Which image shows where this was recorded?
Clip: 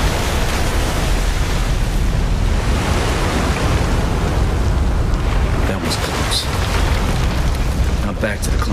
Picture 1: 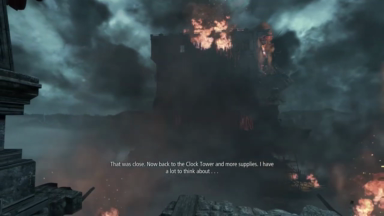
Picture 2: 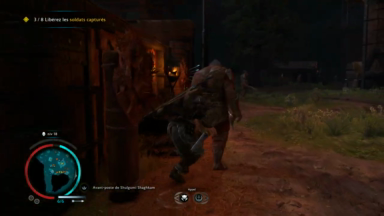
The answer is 1